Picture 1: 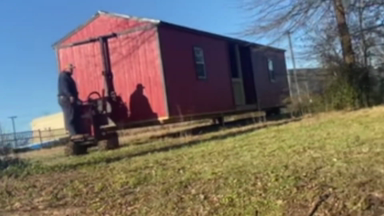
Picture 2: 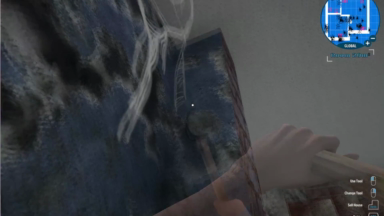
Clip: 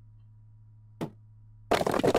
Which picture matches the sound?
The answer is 2